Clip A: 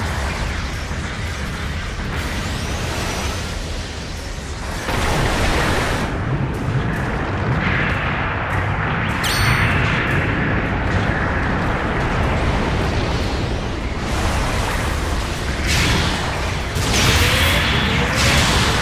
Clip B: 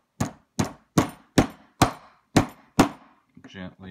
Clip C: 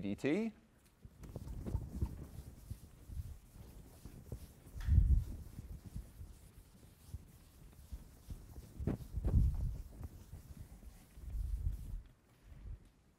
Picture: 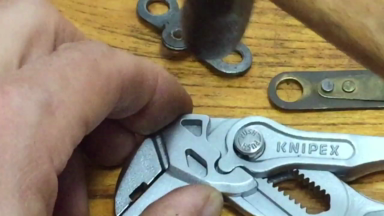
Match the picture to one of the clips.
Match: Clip B